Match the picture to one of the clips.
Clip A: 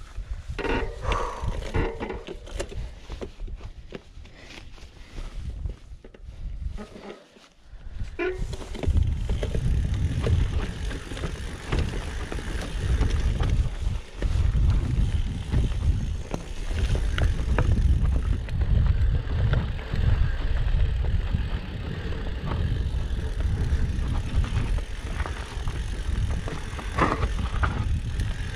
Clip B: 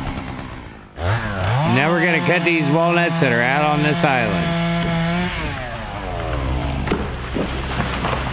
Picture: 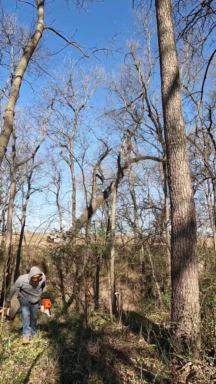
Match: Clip B